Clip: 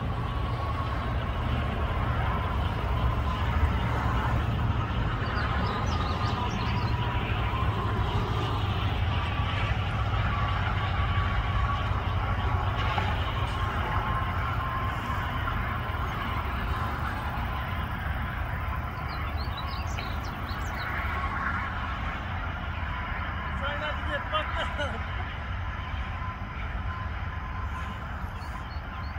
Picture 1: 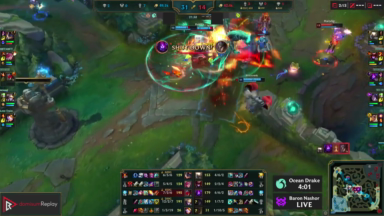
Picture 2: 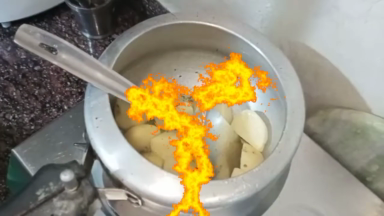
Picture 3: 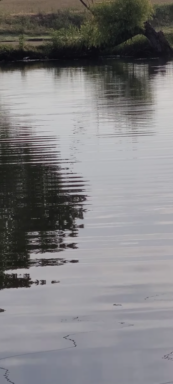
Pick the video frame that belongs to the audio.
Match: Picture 3